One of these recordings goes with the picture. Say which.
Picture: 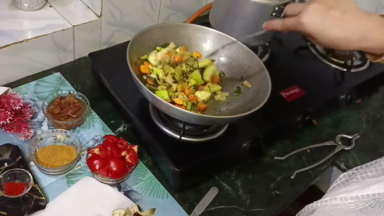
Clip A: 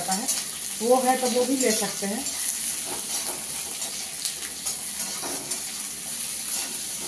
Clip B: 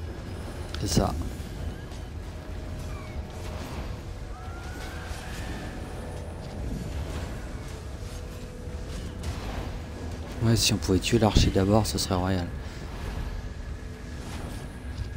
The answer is A